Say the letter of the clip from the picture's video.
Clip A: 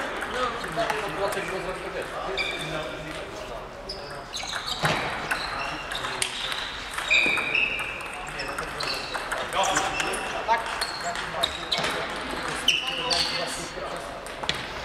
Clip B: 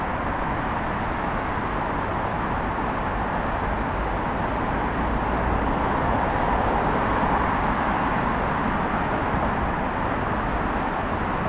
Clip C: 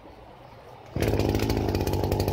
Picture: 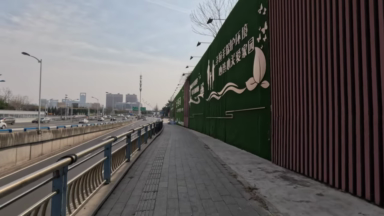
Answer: B